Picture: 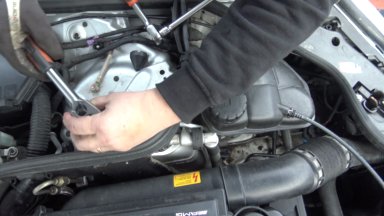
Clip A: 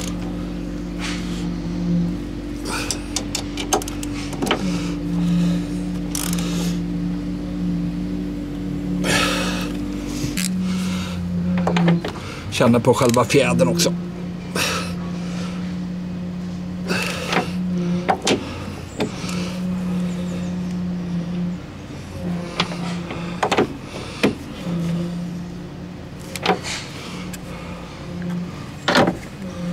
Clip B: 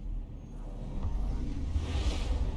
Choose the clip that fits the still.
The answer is A